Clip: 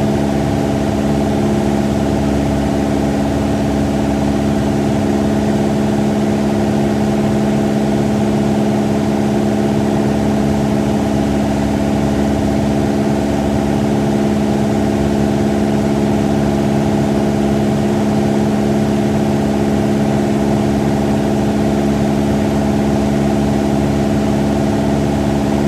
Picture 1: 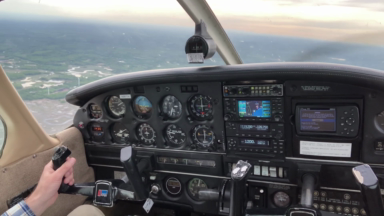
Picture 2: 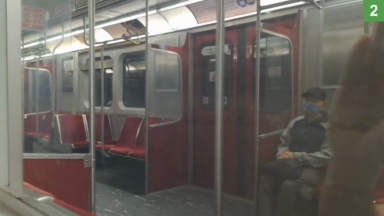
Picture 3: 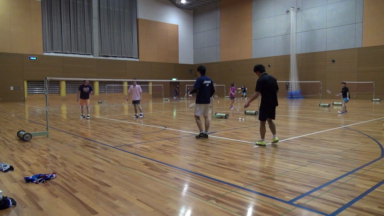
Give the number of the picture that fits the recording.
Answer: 1